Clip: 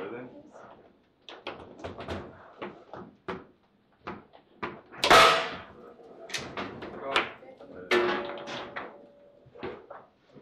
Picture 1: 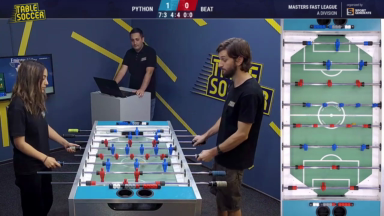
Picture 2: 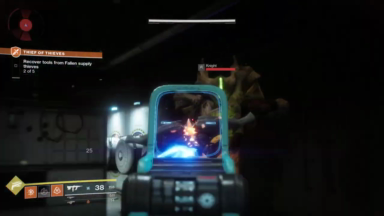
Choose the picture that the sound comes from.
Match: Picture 1